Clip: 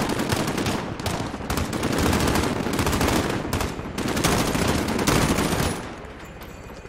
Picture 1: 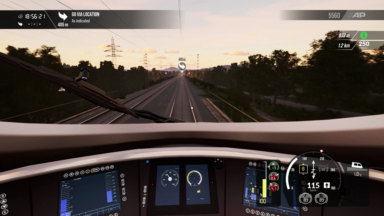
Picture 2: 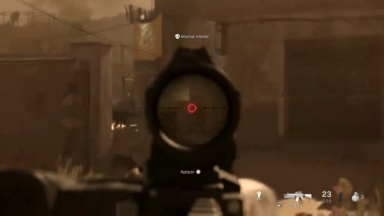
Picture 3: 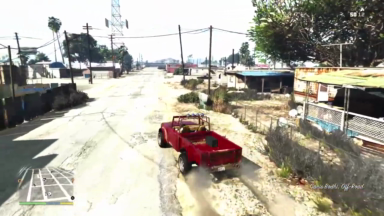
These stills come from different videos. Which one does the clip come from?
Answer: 2